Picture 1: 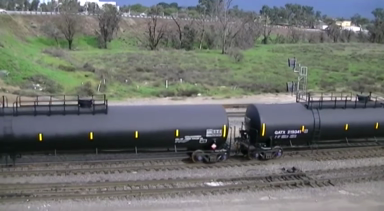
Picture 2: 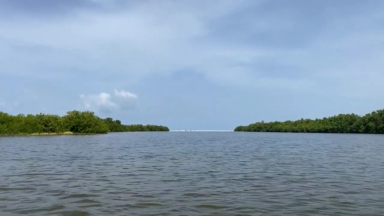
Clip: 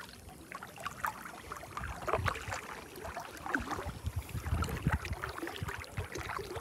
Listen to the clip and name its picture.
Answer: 2